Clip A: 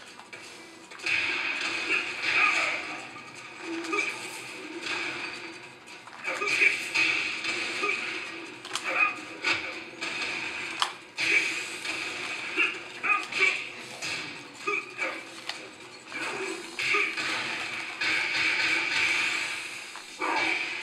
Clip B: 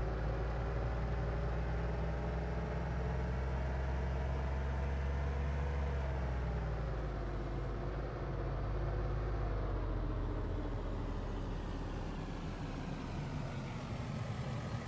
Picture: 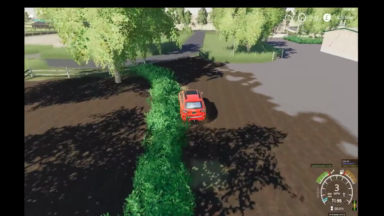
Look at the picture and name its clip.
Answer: B